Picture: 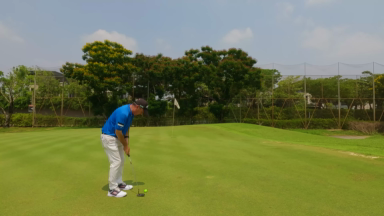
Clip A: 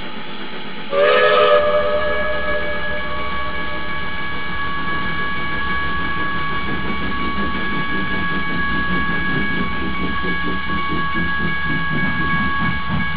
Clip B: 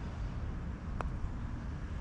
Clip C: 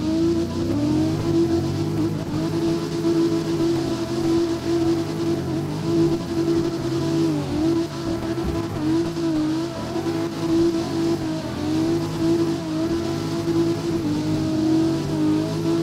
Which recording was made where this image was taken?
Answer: B